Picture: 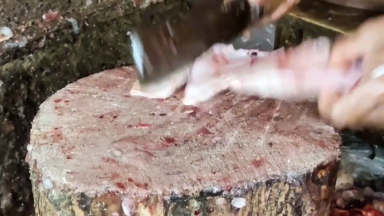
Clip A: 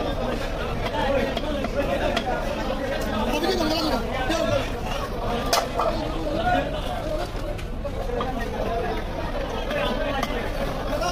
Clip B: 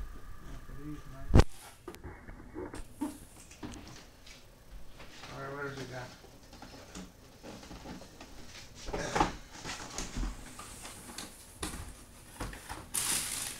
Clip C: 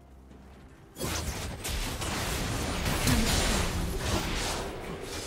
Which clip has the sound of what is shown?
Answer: A